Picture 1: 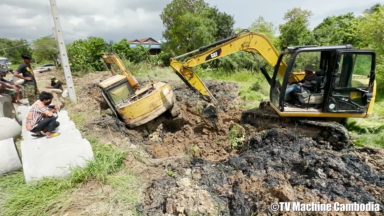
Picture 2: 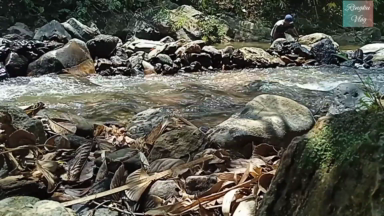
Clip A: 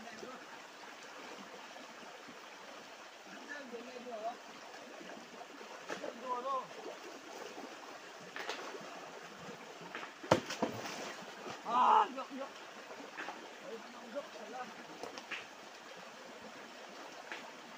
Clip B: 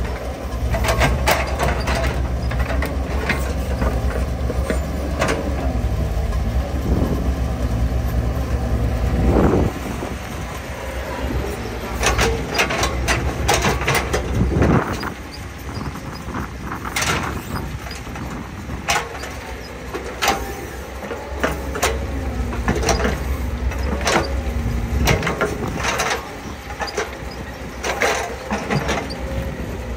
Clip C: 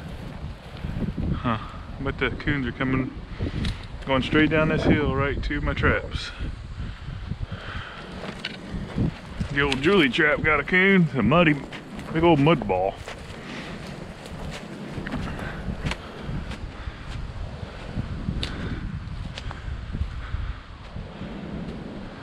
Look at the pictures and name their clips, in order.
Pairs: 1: B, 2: A